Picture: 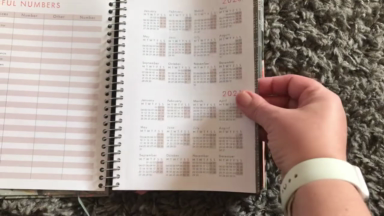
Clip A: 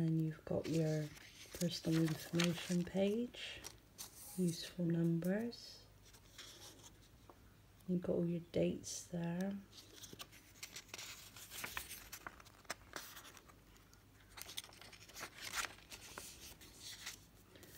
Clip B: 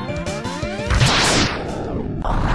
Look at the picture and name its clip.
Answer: A